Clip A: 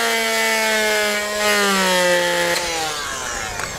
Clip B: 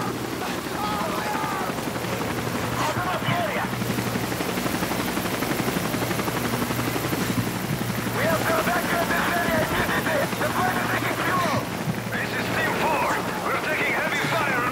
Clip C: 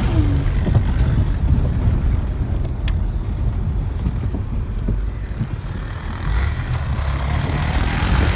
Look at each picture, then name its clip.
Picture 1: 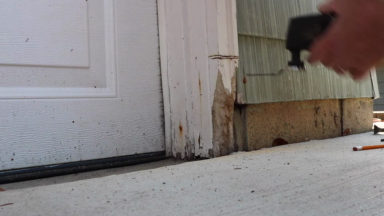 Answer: A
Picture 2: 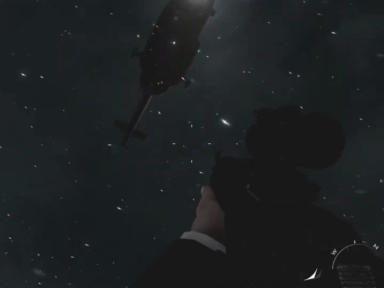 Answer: B